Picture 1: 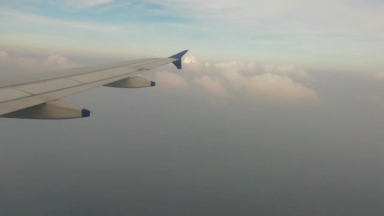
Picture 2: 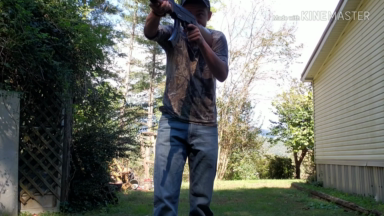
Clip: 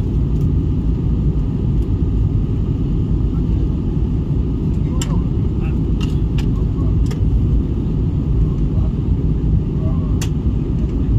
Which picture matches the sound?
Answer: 1